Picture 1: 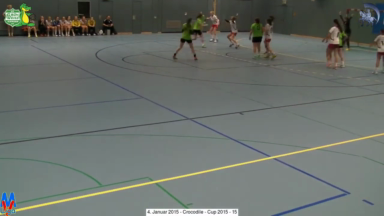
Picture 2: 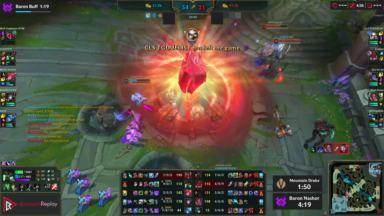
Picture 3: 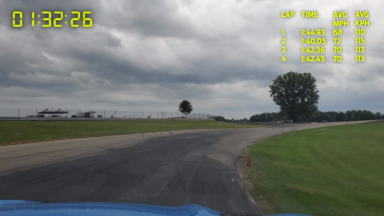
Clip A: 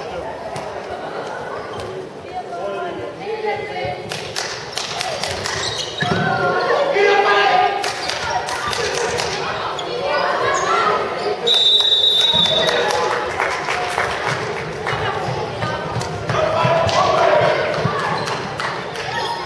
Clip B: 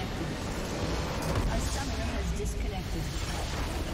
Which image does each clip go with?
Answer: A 1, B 2